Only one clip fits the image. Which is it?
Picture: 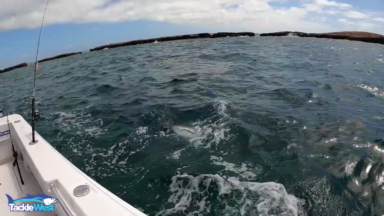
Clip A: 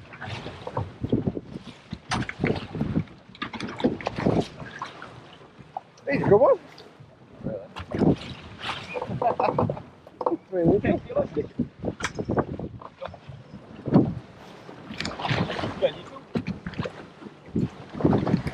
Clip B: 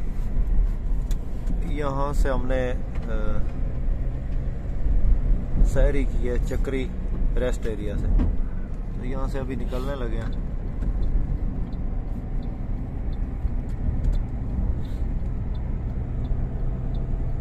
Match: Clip A